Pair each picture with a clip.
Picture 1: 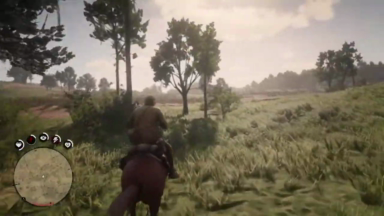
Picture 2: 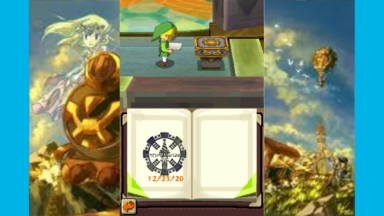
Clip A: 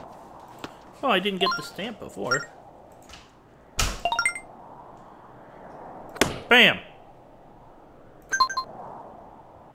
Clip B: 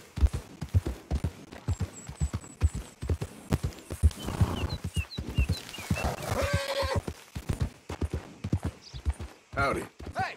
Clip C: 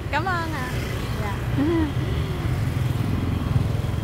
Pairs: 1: B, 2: A